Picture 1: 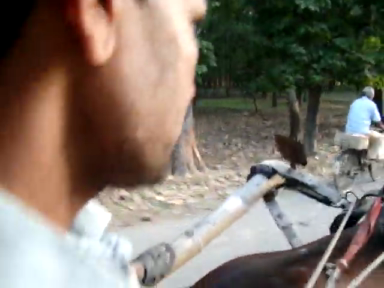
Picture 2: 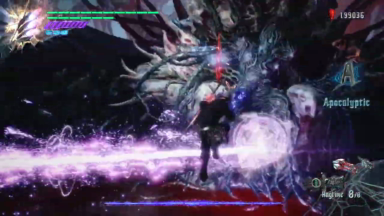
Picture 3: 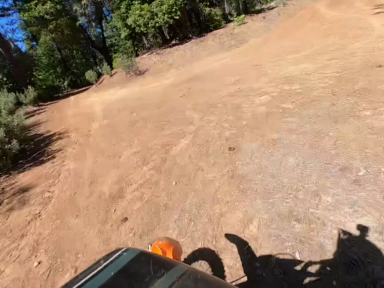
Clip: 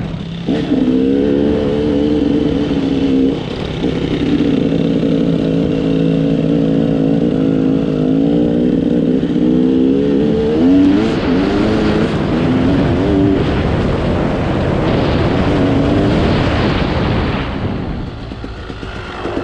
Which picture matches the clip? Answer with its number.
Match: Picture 3